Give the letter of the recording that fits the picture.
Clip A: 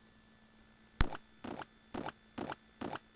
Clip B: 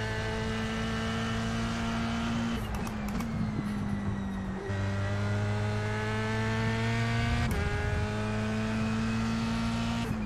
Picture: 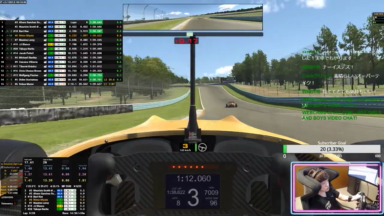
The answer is B